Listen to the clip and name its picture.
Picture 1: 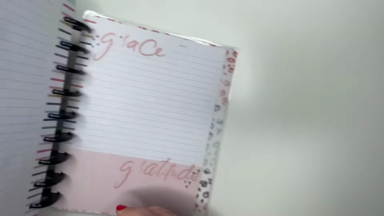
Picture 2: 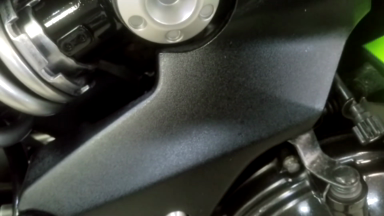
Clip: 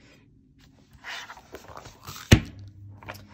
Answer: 1